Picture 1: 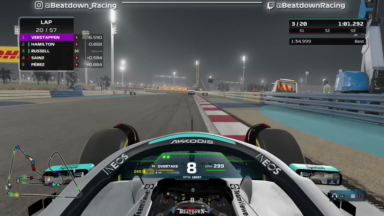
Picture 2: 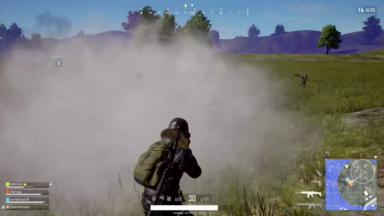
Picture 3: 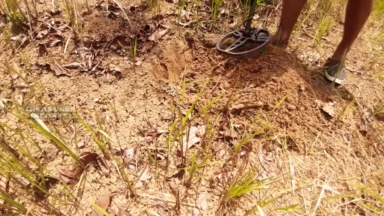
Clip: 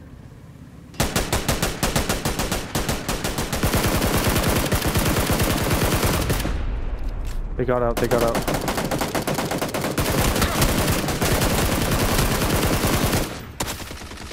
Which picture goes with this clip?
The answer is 2